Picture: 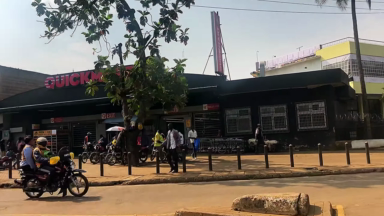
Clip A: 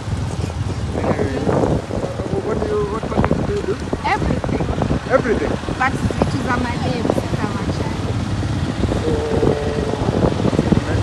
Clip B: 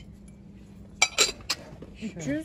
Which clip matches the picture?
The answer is A